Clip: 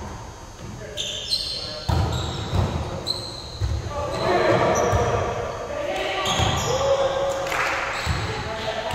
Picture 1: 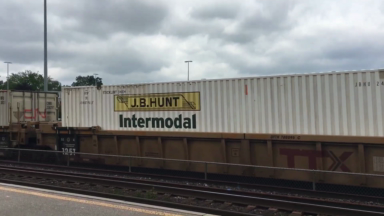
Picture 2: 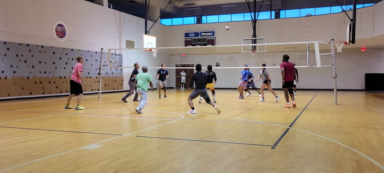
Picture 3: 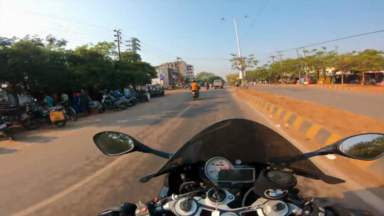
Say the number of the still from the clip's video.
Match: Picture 2